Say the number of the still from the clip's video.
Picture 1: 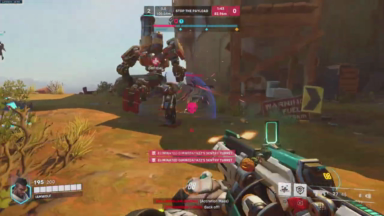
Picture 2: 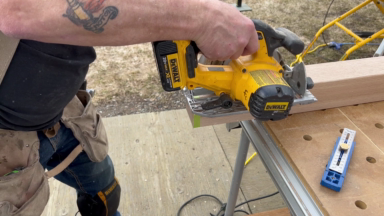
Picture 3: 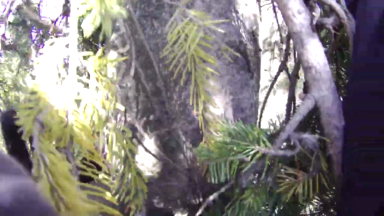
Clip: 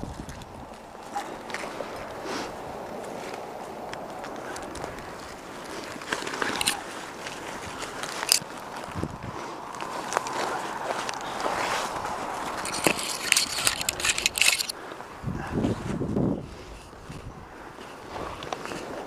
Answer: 3